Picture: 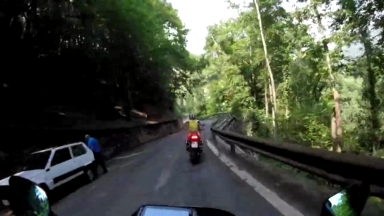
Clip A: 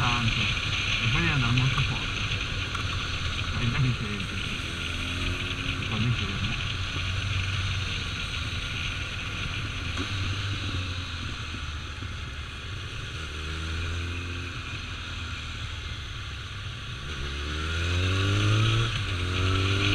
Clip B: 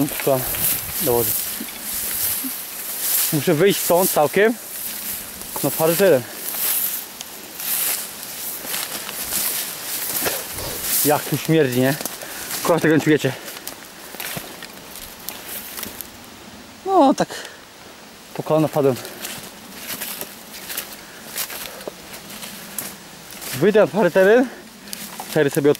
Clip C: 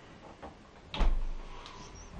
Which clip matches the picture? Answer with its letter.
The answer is A